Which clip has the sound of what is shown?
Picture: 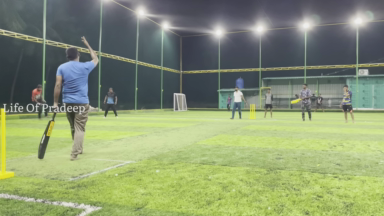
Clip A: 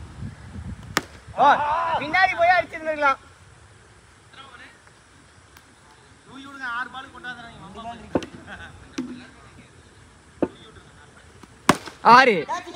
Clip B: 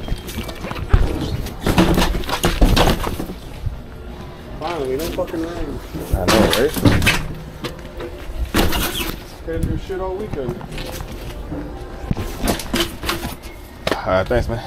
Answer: A